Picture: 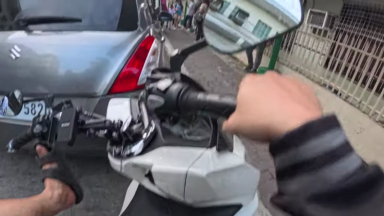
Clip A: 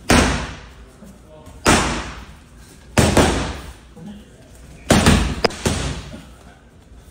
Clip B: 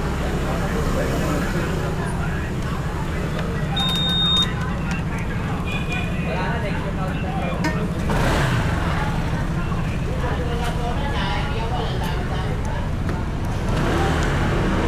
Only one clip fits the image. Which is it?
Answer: B